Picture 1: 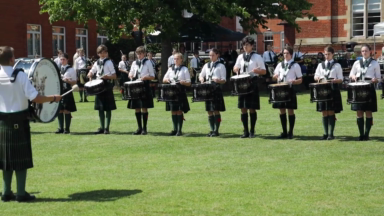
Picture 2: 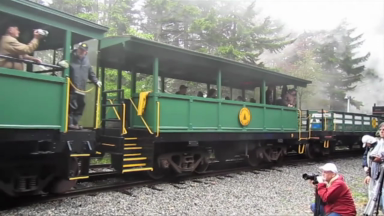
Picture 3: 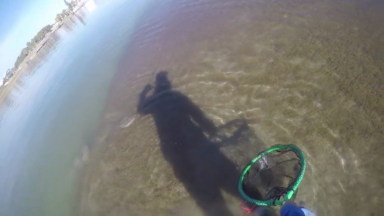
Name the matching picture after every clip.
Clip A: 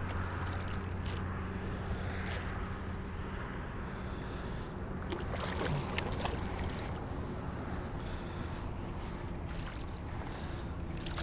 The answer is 3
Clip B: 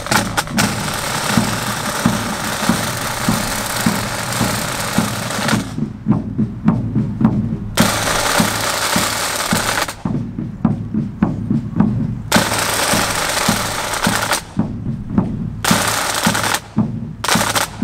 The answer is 1